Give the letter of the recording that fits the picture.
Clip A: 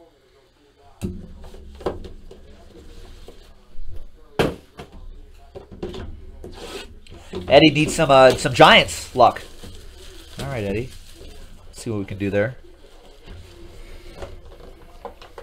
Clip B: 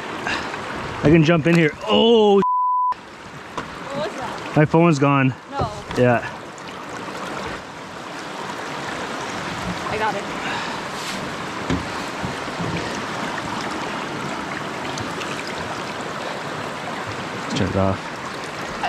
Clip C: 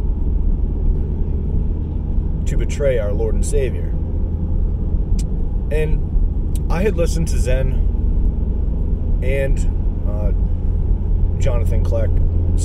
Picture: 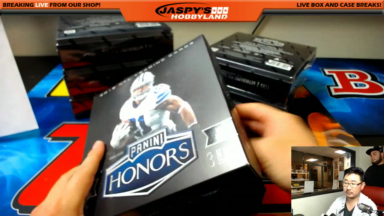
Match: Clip A